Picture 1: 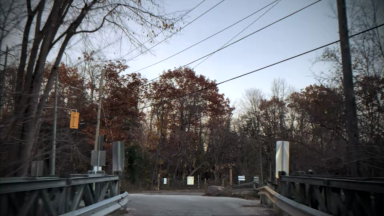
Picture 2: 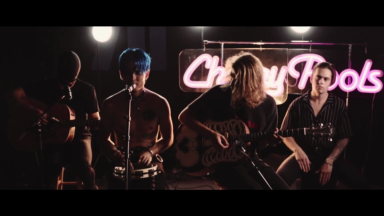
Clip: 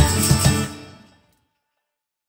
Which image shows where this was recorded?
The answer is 2